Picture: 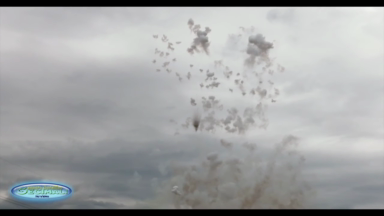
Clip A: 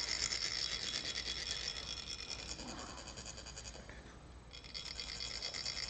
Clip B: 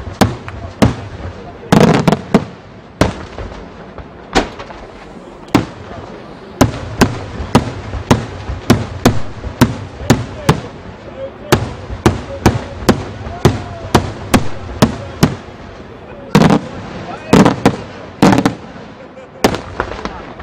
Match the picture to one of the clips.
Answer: B